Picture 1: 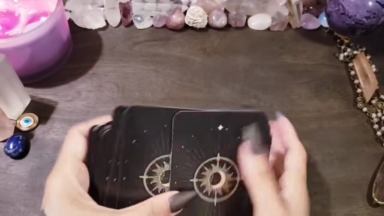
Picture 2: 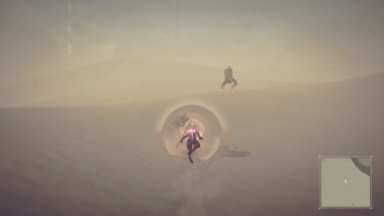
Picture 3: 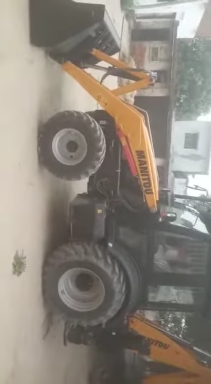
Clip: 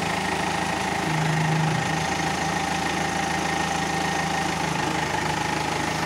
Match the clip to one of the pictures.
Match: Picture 3